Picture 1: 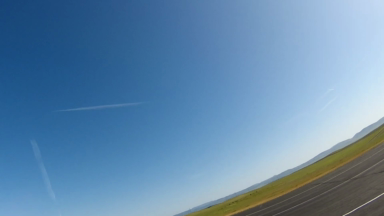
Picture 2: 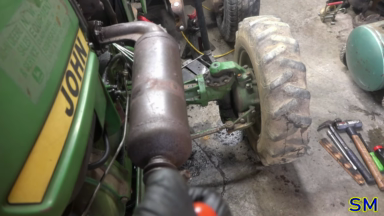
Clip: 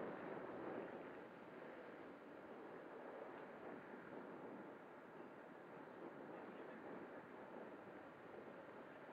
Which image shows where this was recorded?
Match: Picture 1